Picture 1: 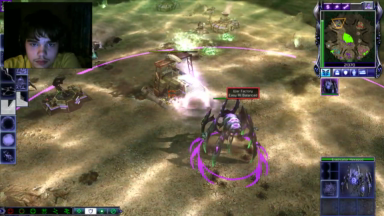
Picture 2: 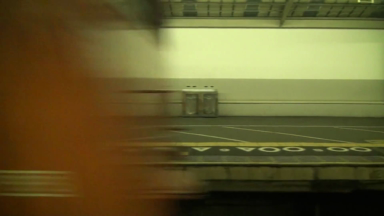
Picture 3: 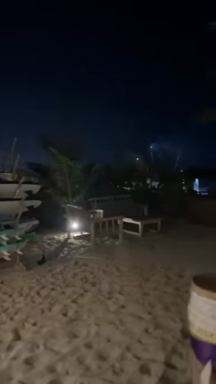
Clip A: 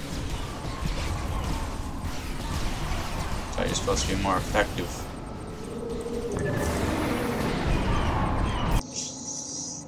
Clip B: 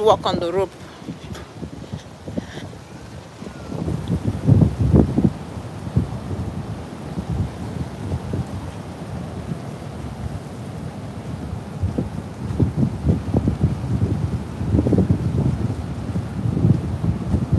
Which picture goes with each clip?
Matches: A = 1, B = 3